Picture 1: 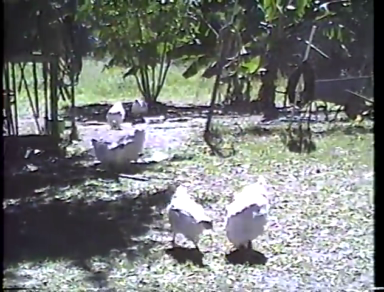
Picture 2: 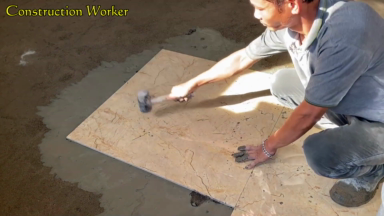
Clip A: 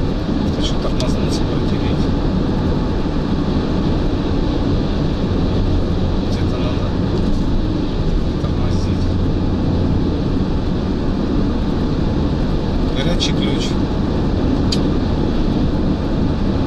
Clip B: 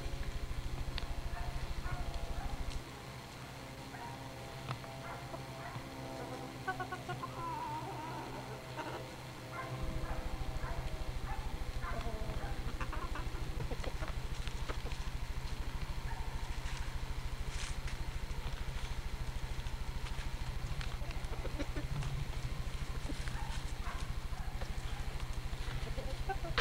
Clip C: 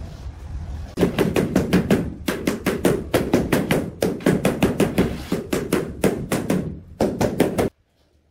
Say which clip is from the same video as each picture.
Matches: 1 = B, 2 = C